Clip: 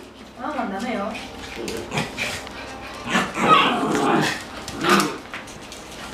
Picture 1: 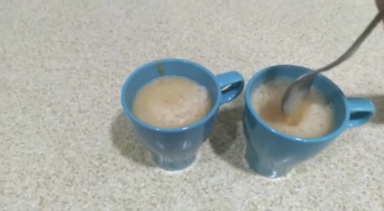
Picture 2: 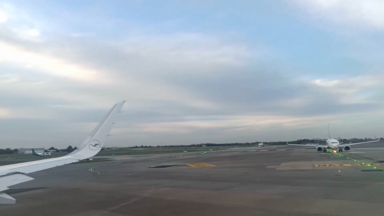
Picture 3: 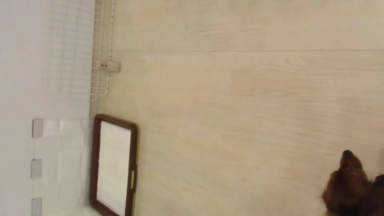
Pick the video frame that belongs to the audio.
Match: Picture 3